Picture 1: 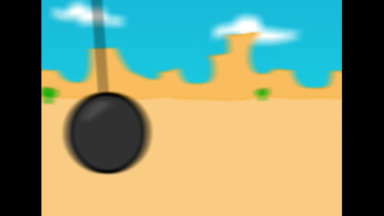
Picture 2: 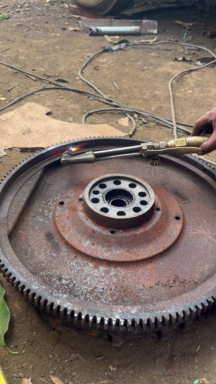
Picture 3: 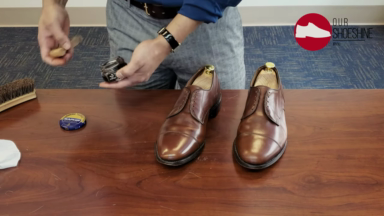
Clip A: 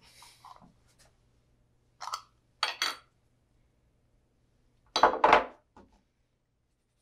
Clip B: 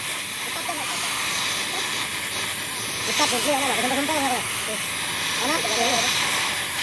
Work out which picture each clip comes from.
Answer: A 3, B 2